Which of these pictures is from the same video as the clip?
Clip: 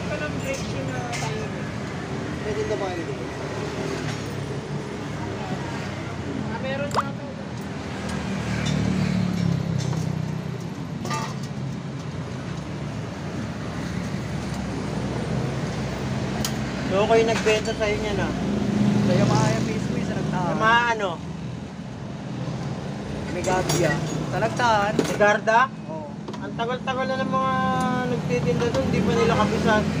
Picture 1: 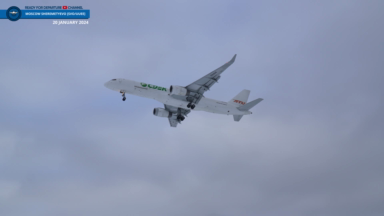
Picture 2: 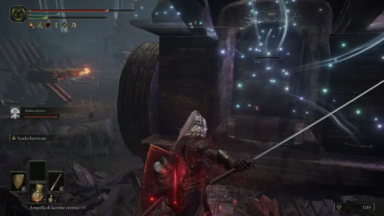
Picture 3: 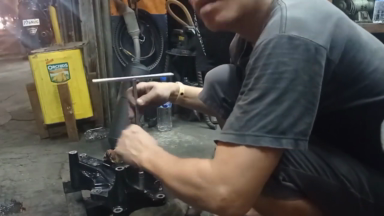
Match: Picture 3